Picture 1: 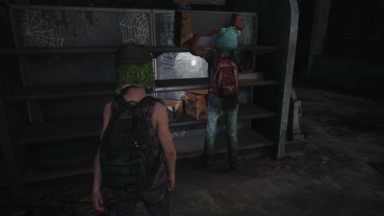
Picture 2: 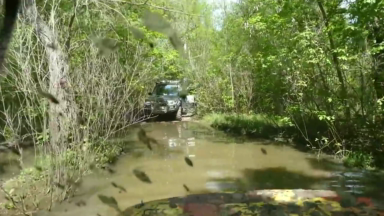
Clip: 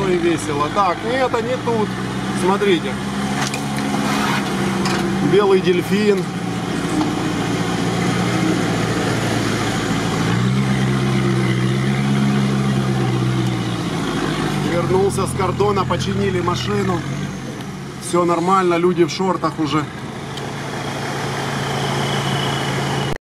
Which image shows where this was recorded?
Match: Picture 2